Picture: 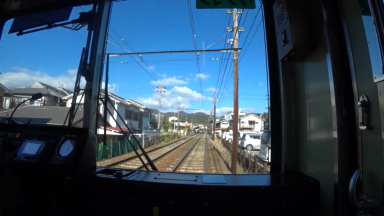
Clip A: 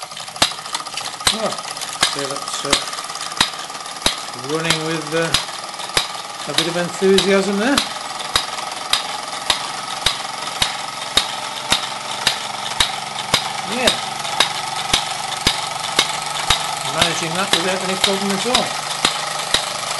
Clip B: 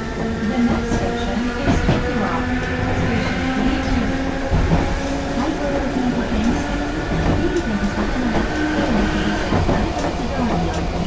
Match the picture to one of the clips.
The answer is B